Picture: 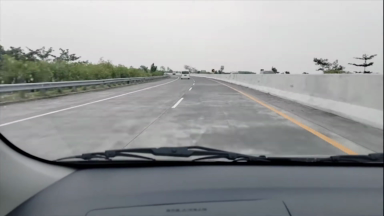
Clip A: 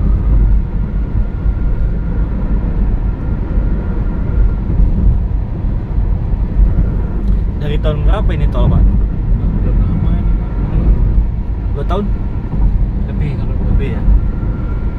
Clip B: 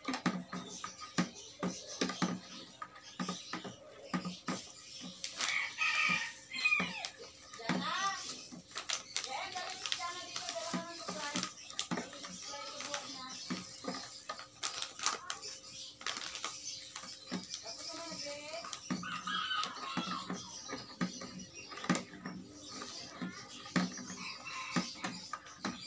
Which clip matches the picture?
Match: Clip A